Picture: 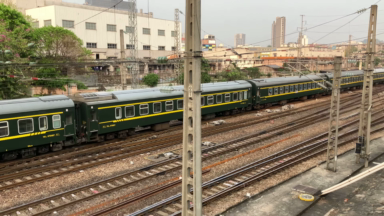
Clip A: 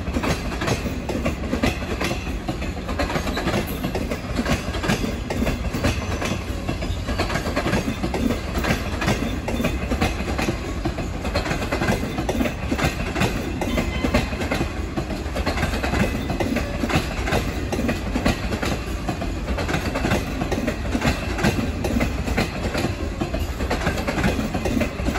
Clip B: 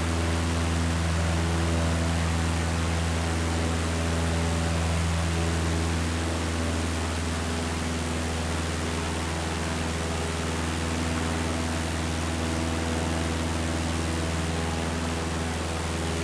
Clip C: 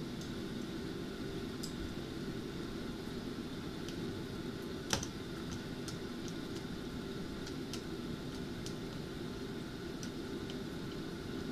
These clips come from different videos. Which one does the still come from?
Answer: A